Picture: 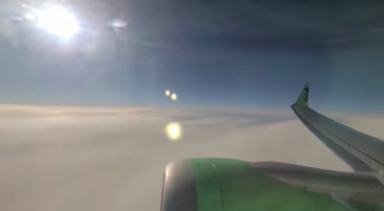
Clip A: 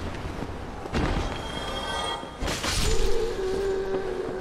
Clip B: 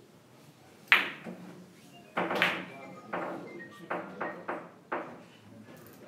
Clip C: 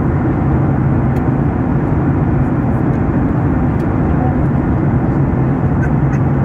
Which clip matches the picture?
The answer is C